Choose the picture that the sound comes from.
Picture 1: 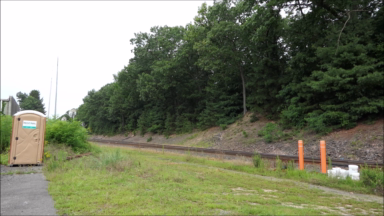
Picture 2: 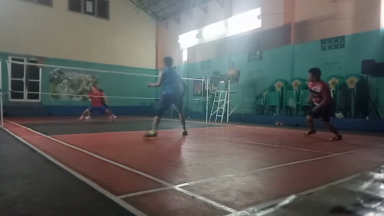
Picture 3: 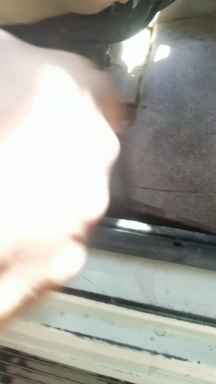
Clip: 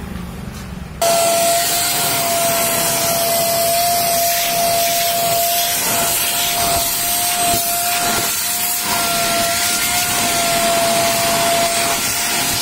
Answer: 3